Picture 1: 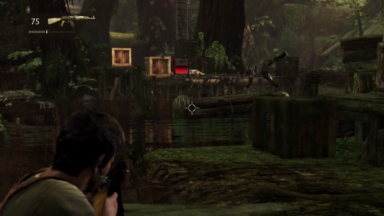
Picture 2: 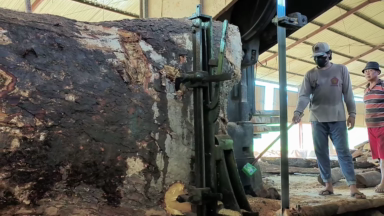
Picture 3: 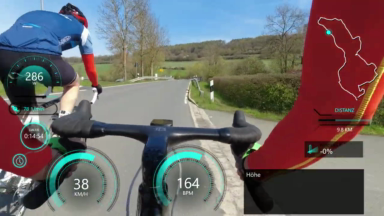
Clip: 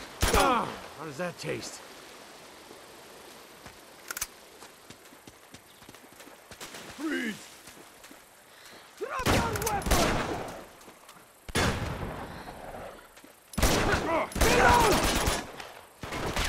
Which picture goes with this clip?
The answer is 1